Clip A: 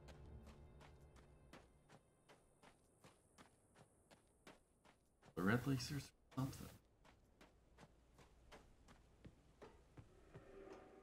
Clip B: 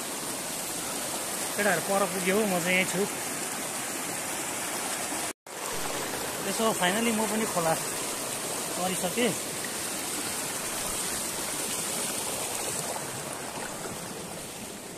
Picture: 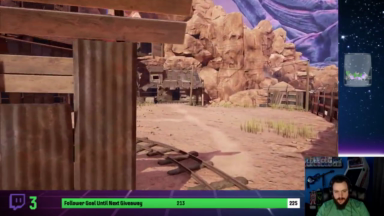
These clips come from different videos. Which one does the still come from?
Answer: A